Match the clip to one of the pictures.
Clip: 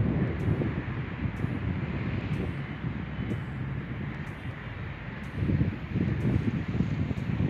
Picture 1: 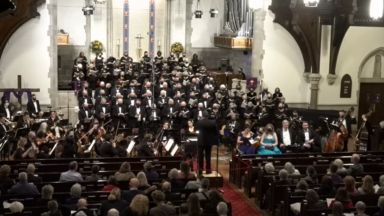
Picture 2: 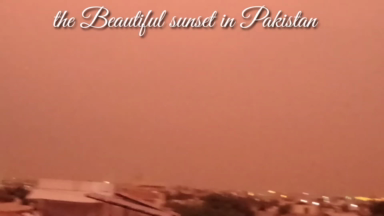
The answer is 2